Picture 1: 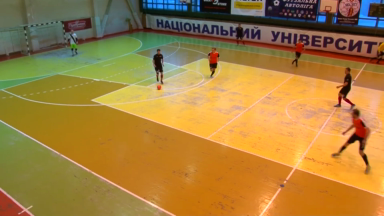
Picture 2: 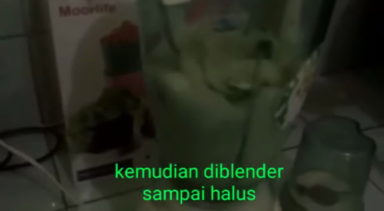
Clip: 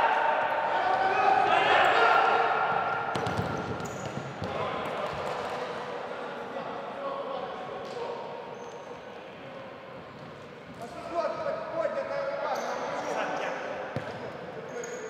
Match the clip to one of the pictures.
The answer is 1